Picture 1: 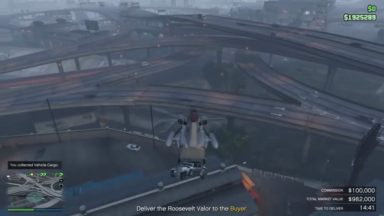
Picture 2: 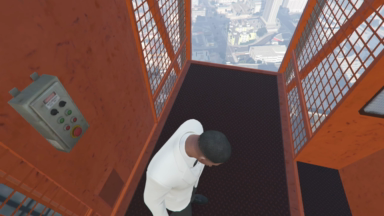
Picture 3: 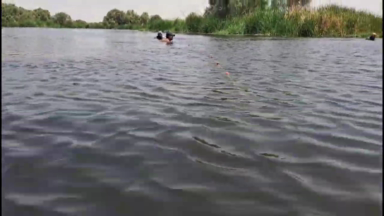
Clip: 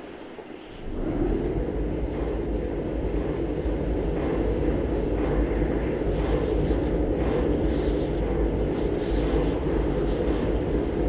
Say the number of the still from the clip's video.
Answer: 2